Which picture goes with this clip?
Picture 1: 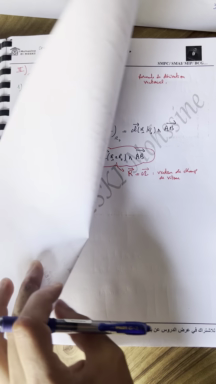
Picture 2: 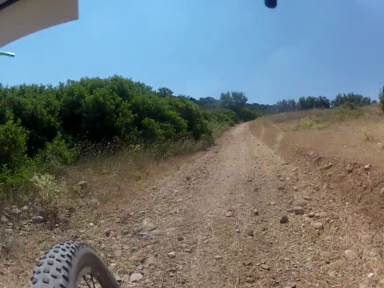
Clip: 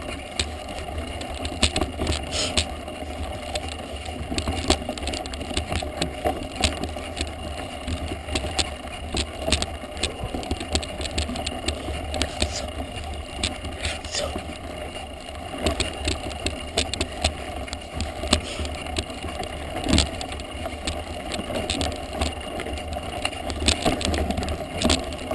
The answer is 2